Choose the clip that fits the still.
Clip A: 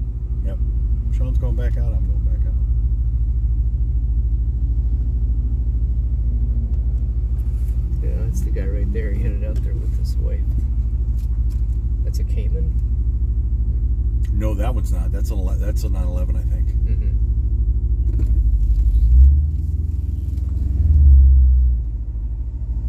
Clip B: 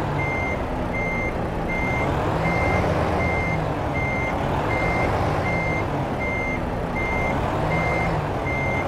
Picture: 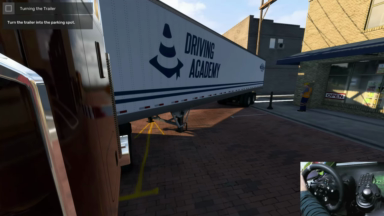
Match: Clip B